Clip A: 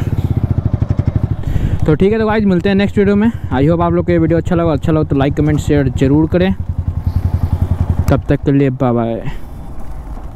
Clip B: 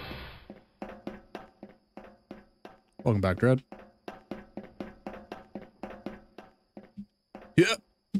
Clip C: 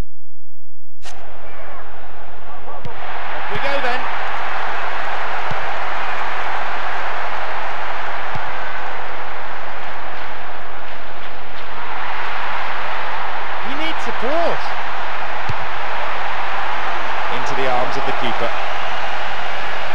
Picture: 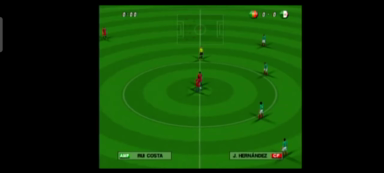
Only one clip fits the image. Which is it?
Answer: C